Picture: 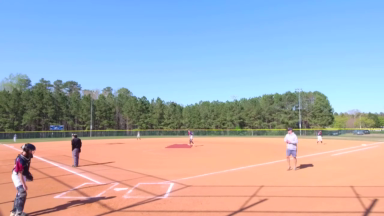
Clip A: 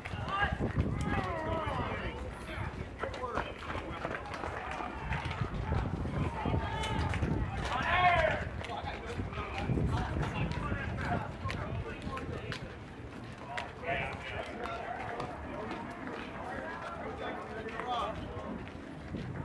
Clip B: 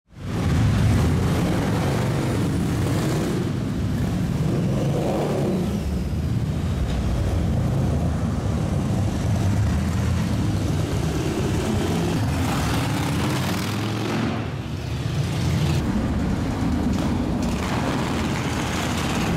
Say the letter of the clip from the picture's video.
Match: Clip A